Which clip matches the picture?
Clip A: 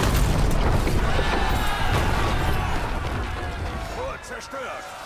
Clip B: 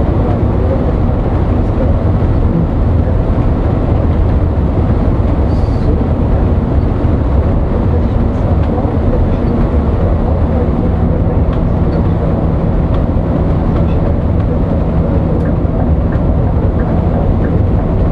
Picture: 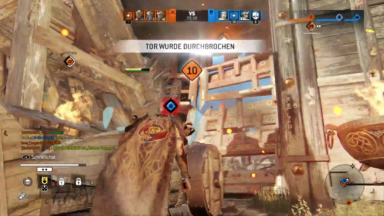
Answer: A